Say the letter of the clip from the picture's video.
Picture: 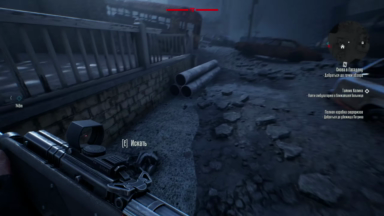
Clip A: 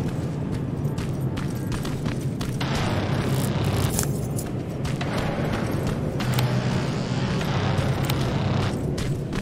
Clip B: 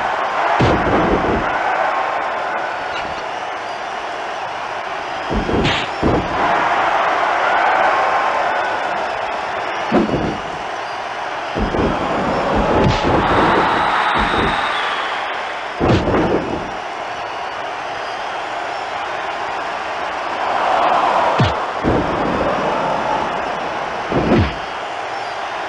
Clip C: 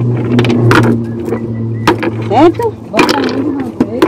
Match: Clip A